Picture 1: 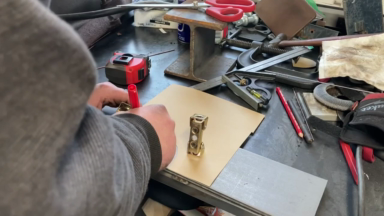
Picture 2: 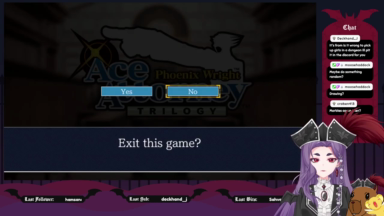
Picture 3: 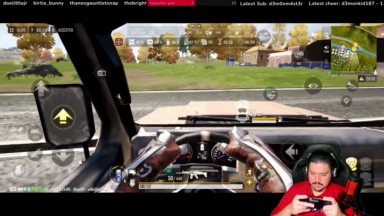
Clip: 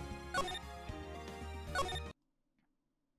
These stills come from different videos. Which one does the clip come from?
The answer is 2